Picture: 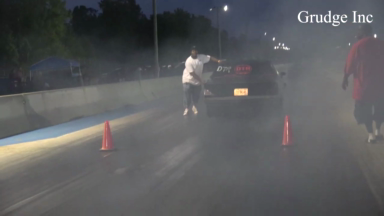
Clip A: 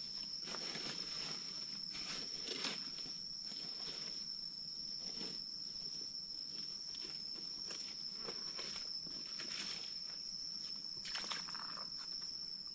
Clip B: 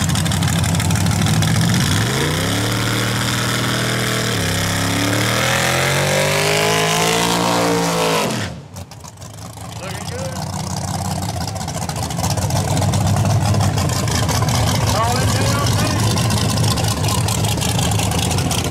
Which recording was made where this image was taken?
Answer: B